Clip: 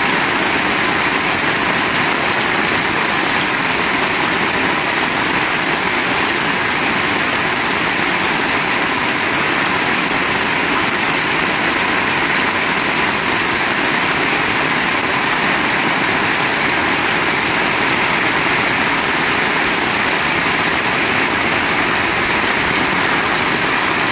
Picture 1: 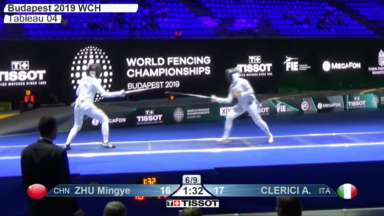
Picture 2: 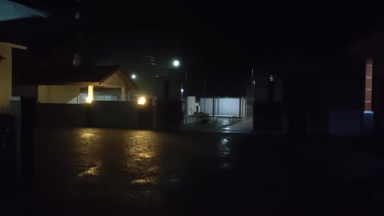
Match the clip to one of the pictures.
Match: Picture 2